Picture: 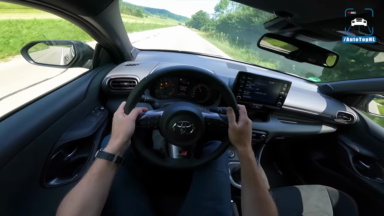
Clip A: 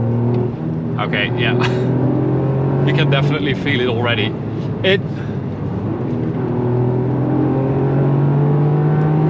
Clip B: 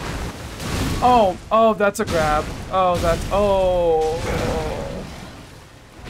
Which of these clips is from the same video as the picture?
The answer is A